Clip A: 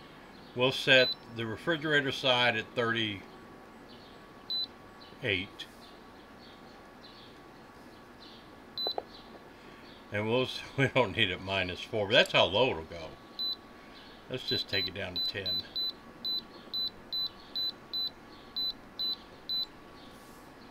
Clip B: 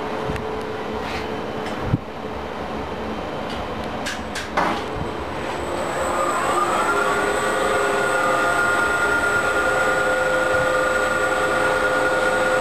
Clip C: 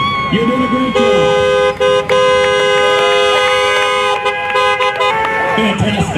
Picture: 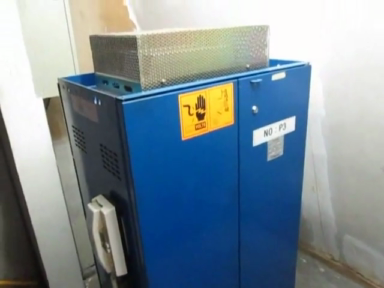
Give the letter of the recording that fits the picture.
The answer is B